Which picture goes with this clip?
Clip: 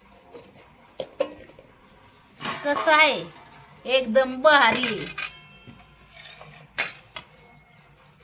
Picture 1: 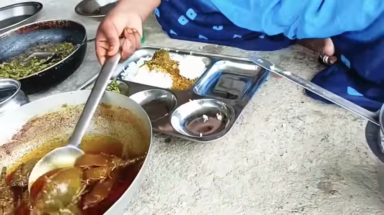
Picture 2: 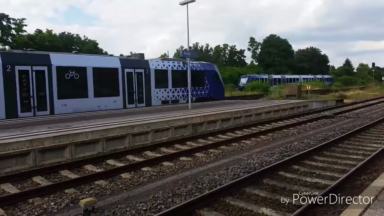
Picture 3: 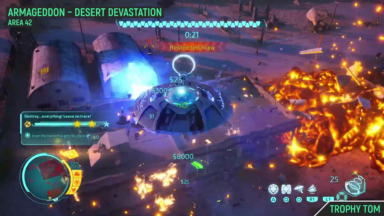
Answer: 1